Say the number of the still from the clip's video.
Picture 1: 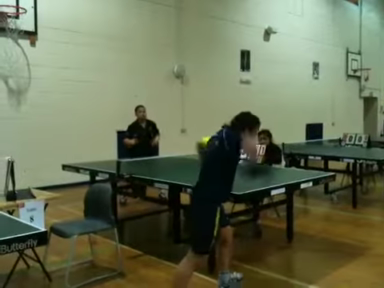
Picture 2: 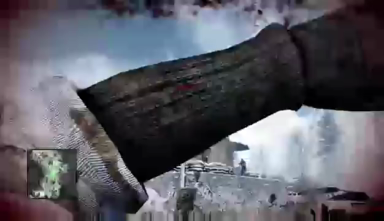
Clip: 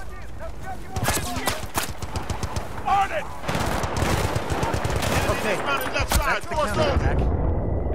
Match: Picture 2